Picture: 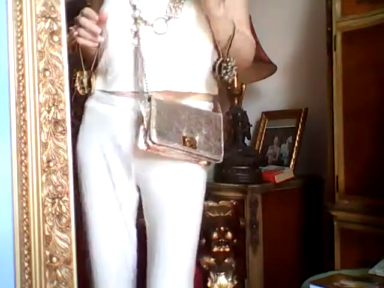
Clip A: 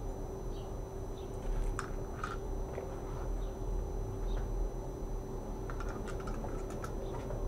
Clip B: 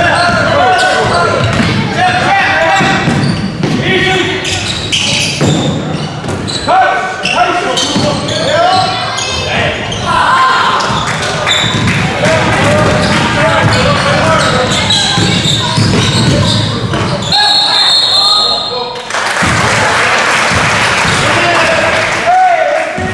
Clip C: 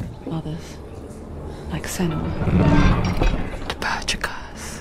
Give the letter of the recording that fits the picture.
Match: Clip A